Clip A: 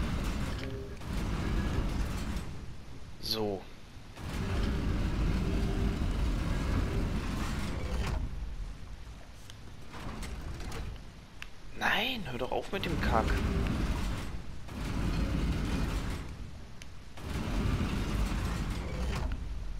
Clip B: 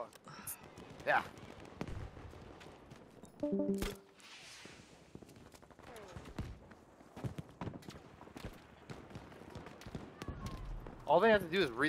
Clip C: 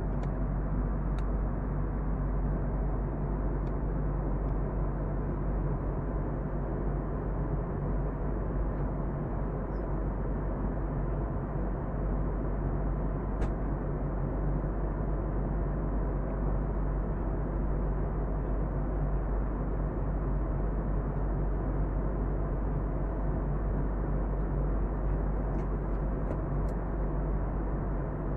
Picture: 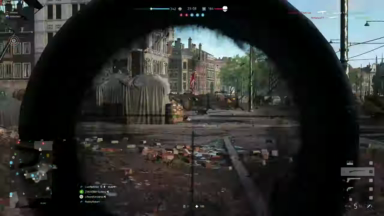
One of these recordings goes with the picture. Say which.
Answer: B